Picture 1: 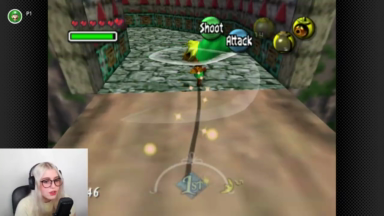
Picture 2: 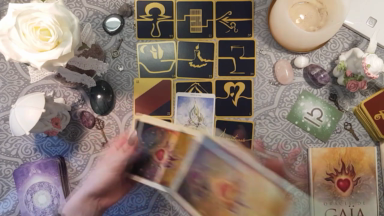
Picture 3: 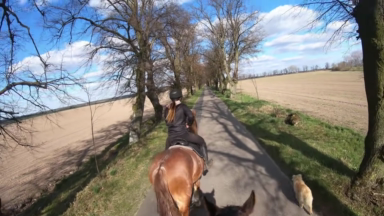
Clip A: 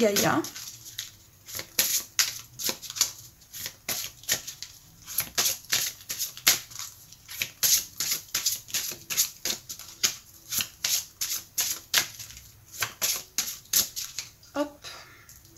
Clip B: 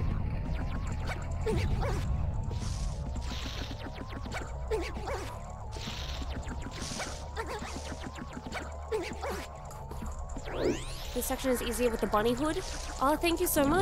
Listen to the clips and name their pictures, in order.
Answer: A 2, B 1